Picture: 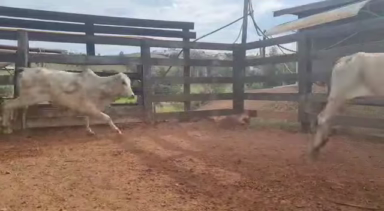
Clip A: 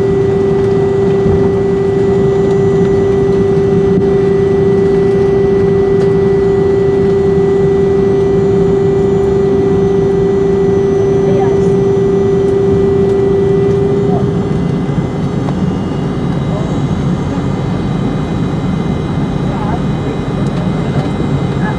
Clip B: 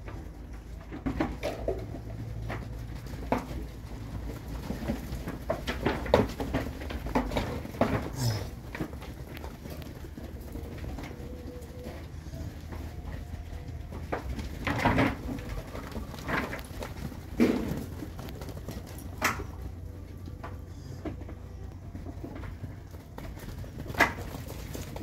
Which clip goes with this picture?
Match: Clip B